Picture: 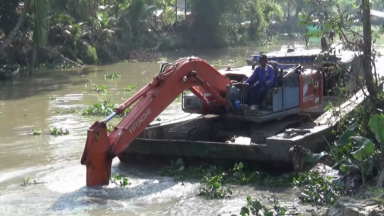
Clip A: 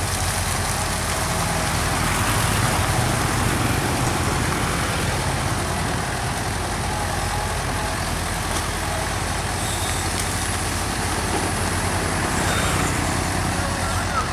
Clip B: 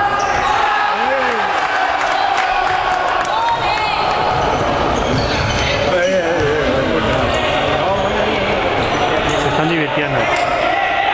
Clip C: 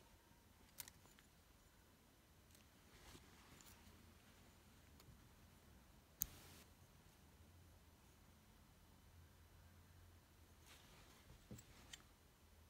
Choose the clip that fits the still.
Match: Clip A